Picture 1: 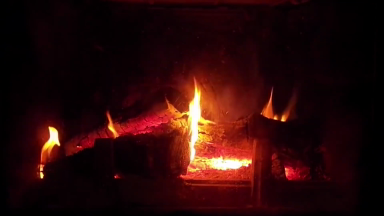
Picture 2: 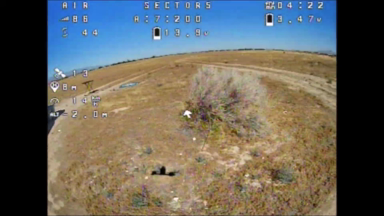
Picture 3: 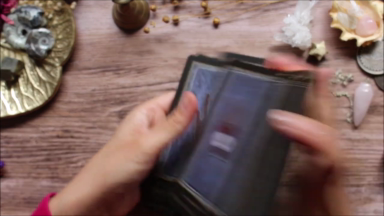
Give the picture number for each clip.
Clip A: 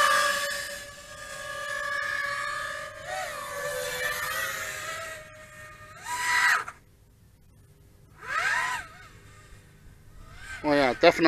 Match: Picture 2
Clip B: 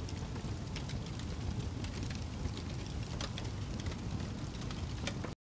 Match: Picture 1